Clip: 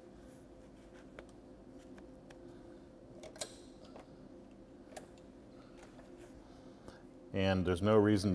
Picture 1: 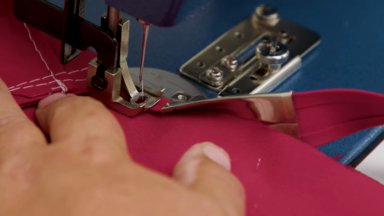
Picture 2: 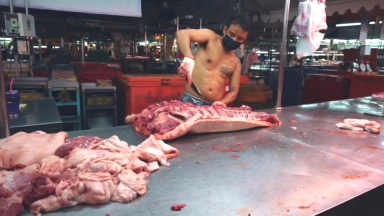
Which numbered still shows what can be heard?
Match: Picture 1